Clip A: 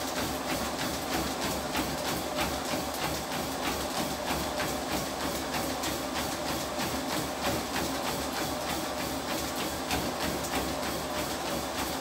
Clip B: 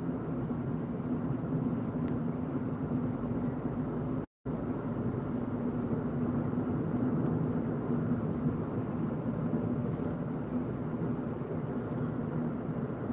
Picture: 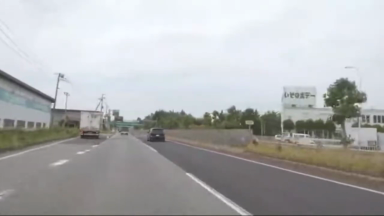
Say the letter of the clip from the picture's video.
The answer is B